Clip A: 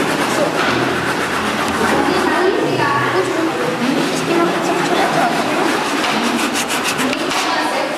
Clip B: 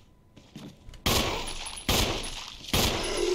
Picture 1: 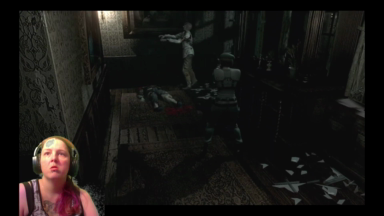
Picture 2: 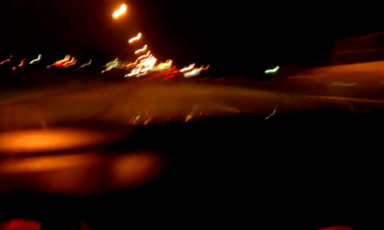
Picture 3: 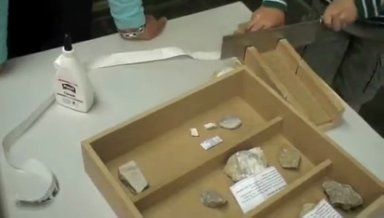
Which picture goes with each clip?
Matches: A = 3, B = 1